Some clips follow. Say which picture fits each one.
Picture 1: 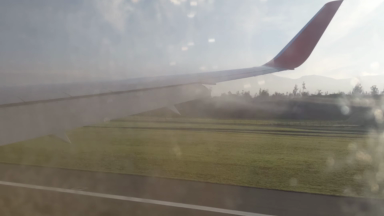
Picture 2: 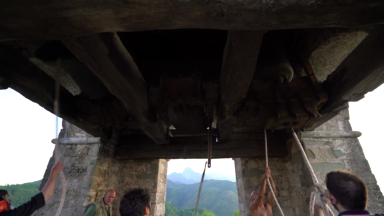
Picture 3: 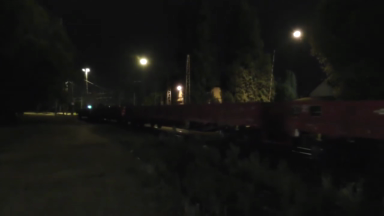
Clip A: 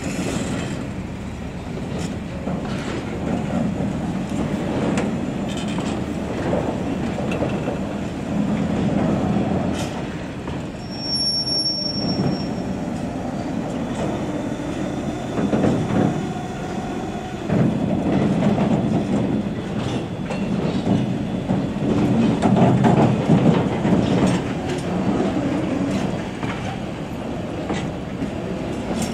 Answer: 3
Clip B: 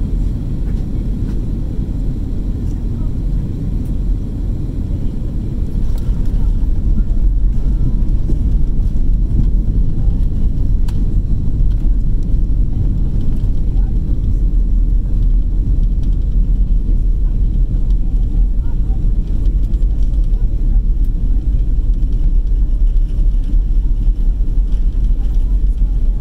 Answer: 1